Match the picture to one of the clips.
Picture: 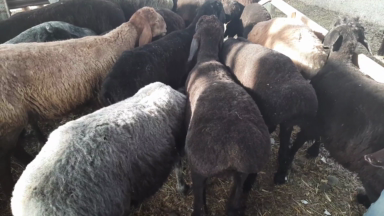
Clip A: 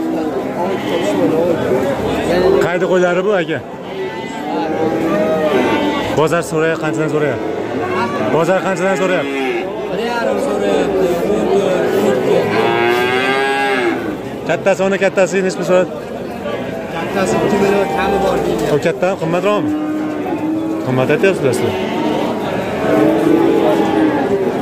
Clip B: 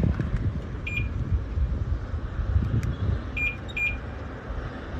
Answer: A